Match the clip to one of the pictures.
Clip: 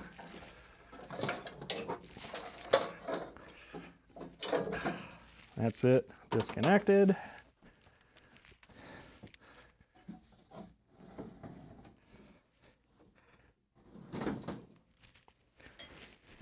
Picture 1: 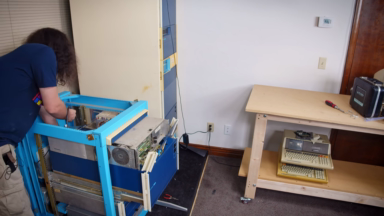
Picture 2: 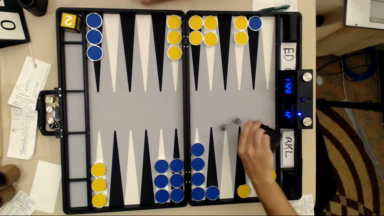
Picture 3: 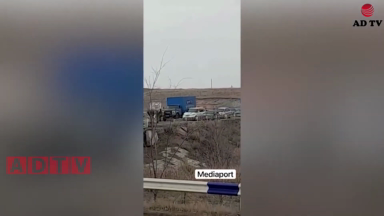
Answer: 1